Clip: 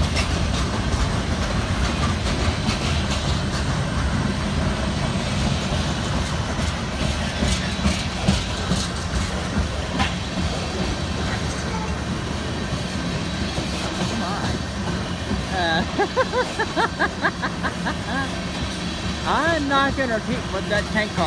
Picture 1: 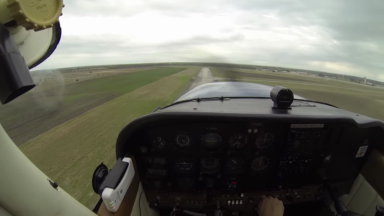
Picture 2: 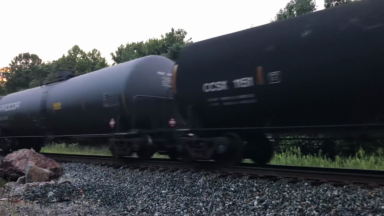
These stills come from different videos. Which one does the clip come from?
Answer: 2